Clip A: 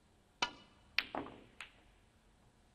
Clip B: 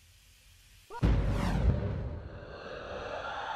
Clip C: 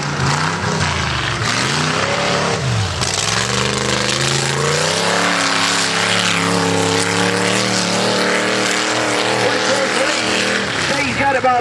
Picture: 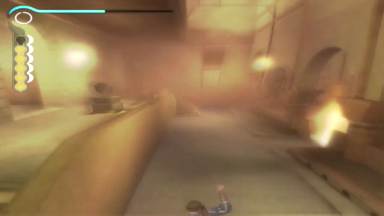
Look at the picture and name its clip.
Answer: B